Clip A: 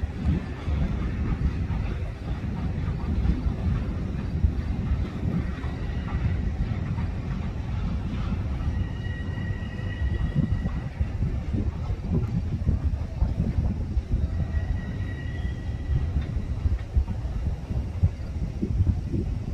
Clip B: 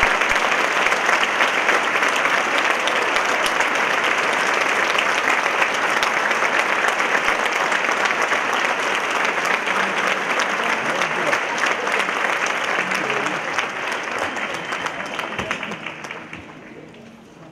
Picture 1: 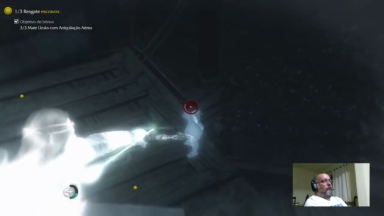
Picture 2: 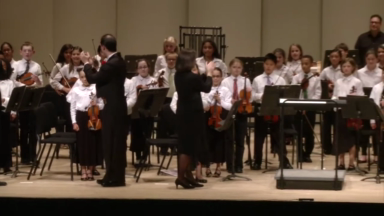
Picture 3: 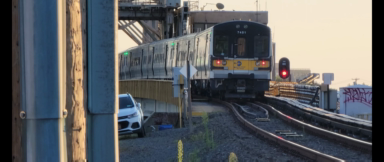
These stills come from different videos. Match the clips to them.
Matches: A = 3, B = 2